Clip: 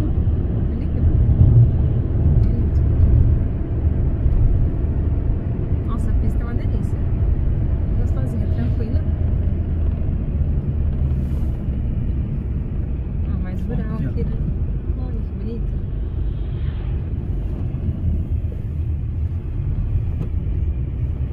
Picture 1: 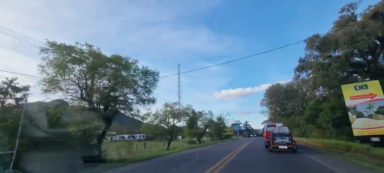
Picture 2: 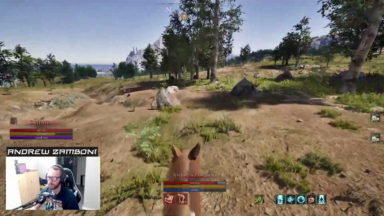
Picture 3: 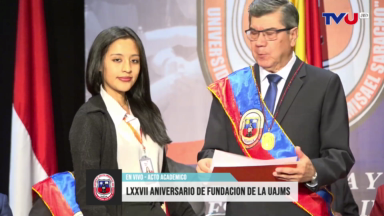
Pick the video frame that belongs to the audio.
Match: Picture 1